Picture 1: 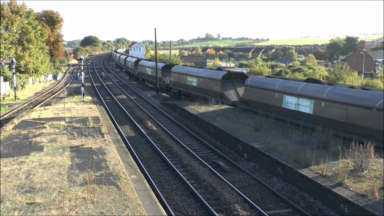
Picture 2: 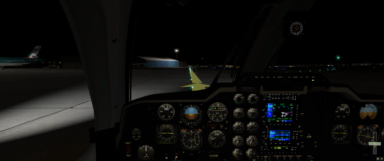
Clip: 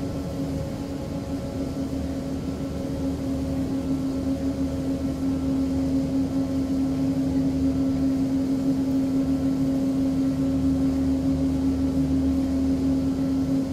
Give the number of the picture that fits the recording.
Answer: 2